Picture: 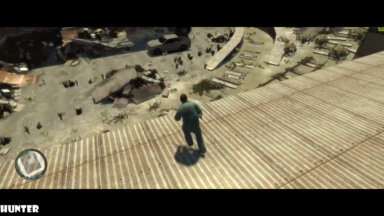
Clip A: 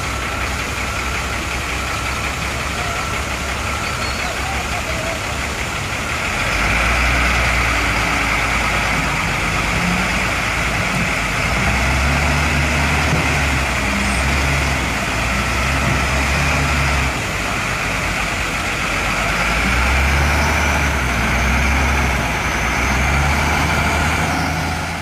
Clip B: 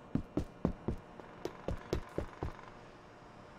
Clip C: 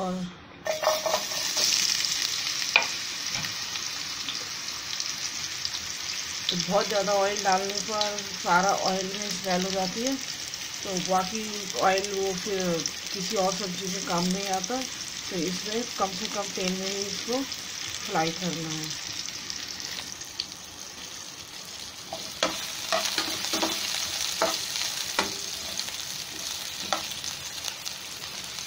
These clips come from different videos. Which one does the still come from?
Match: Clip B